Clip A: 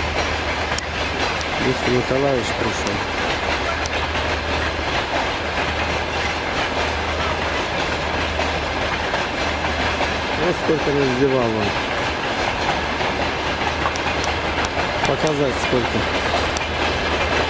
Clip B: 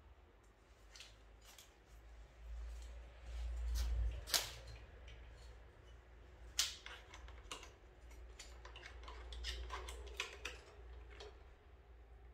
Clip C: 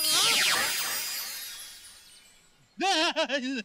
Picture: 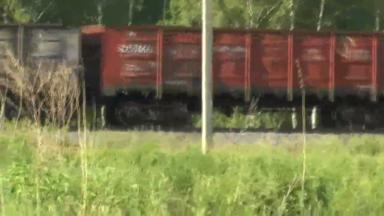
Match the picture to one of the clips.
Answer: A